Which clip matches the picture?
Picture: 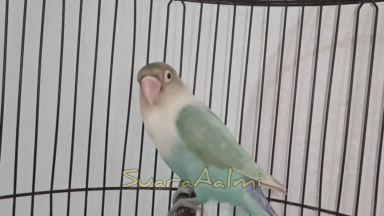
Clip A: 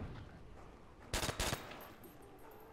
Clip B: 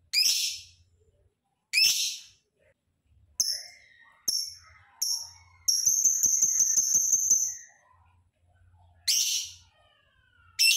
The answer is B